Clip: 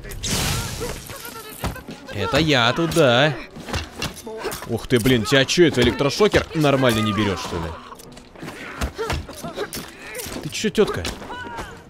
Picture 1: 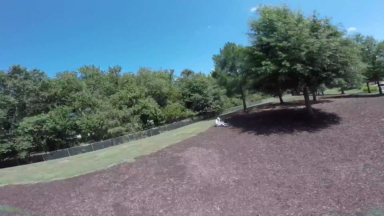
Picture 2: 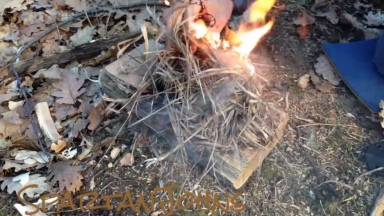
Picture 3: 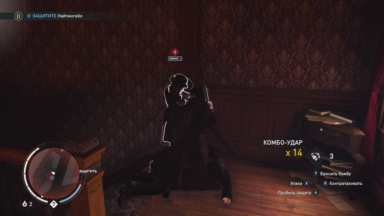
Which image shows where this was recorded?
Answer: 3